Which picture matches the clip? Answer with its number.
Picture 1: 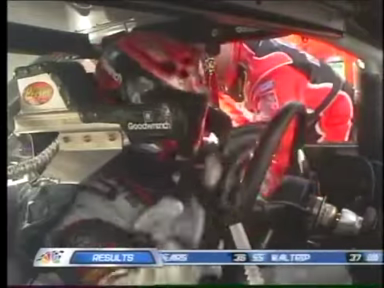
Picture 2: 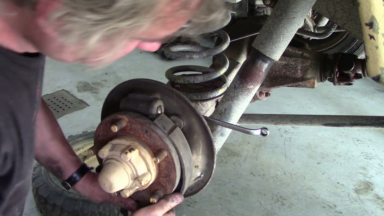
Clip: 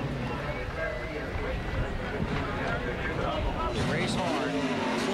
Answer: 1